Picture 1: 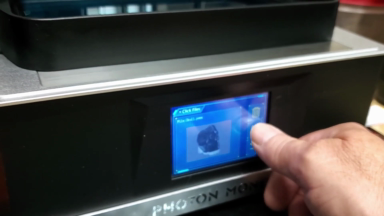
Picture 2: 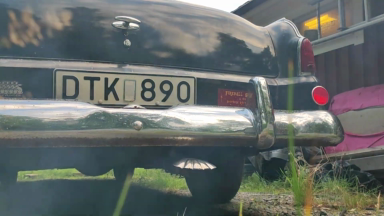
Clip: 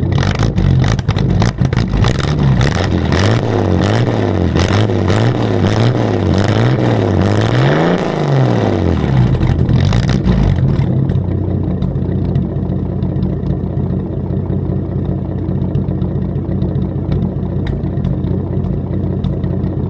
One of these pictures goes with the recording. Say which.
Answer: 2